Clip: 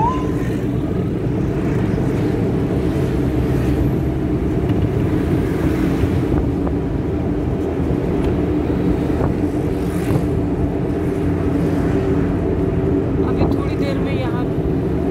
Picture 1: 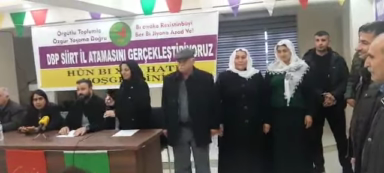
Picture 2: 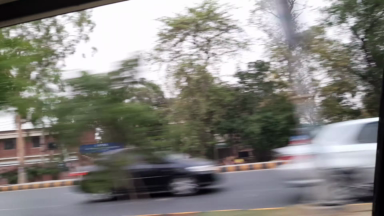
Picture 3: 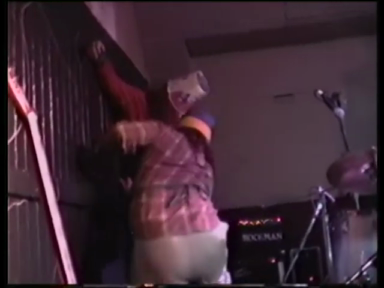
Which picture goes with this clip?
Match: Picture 2